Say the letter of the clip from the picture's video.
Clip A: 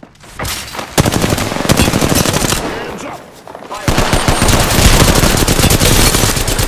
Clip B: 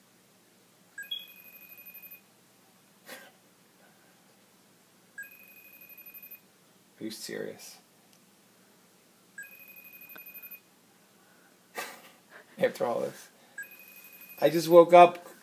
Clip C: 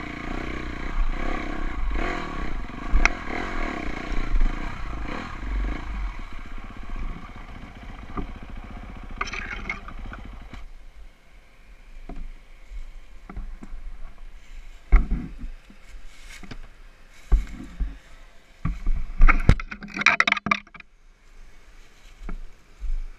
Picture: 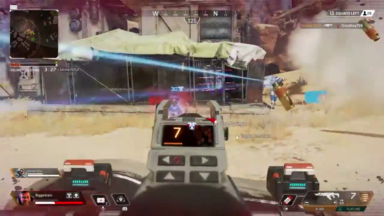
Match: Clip A